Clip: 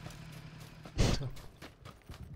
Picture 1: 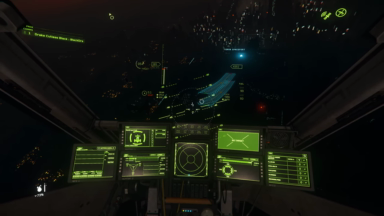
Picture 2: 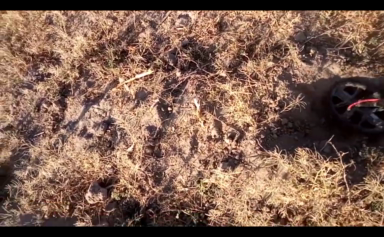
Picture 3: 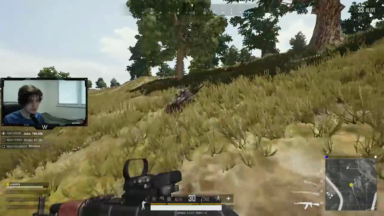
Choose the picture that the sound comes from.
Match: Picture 3